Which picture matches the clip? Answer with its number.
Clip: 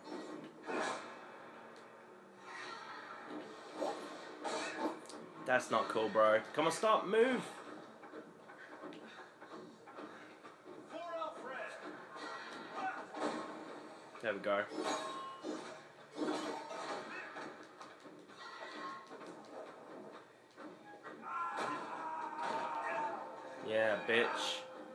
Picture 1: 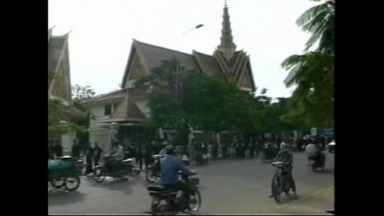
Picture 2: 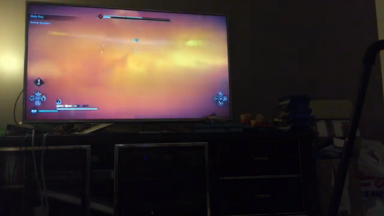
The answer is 2